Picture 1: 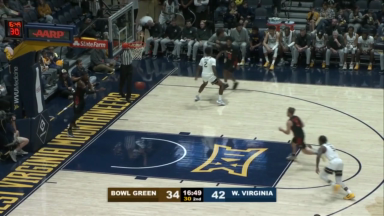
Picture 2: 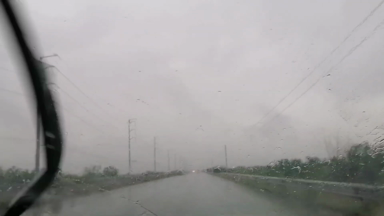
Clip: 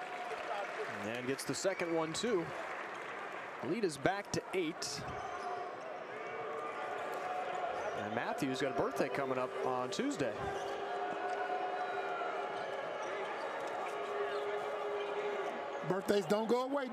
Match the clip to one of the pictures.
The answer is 1